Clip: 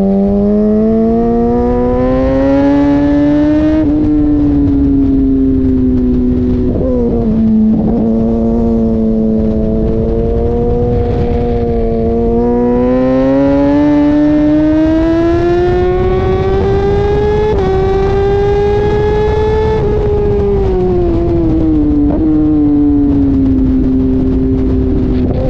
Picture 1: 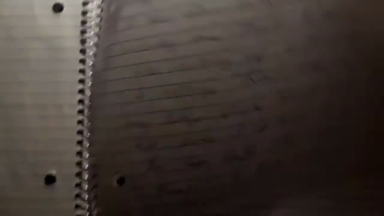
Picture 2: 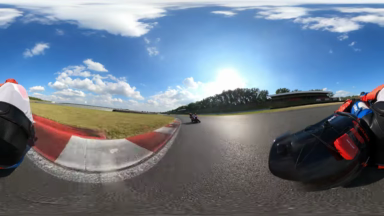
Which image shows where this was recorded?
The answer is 2